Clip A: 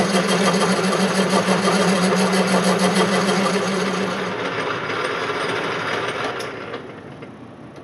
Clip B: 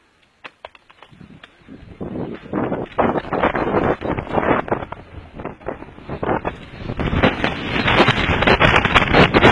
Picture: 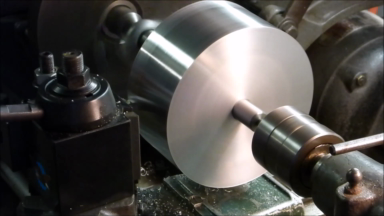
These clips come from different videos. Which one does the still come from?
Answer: A